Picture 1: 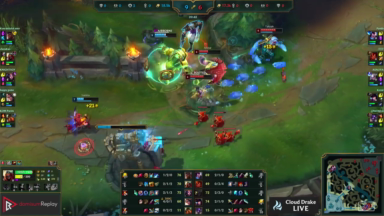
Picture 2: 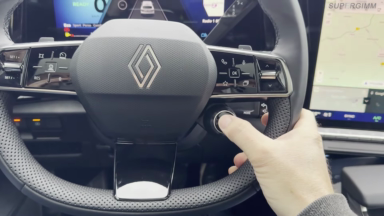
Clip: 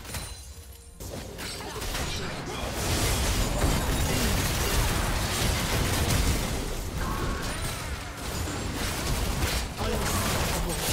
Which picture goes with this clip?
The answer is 1